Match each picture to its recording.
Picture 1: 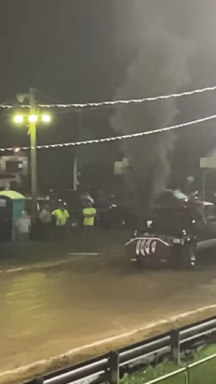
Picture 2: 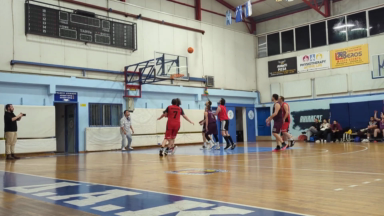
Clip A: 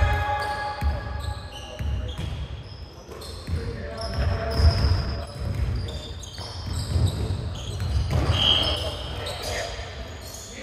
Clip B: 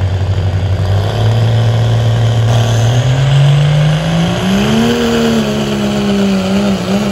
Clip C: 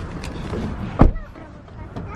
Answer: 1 B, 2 A